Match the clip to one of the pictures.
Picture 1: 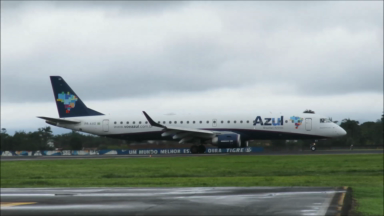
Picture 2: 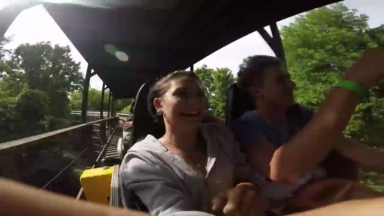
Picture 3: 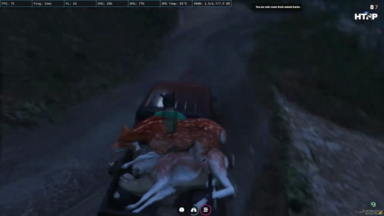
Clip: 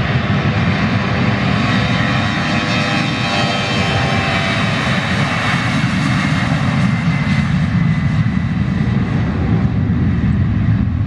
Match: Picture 1